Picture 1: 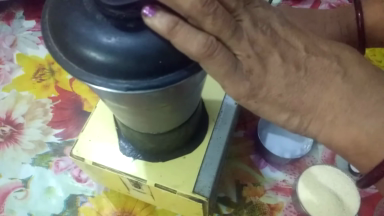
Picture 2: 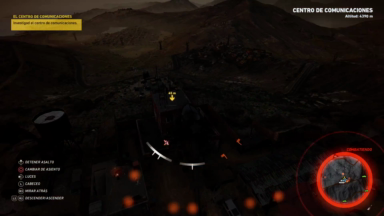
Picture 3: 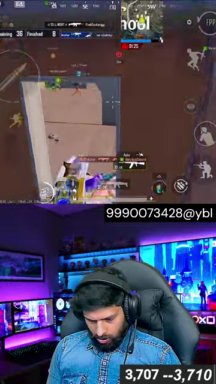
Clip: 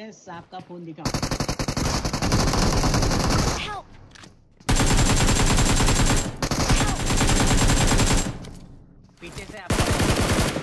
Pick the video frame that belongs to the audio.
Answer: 3